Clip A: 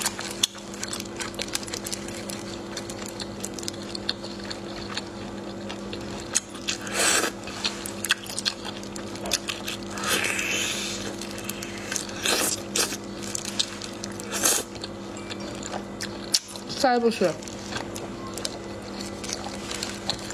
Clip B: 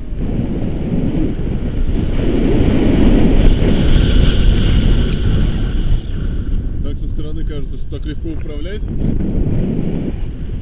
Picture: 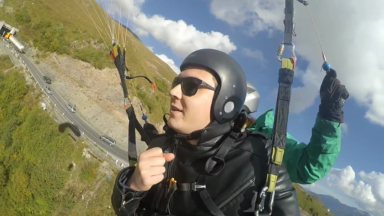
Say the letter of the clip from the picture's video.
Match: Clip B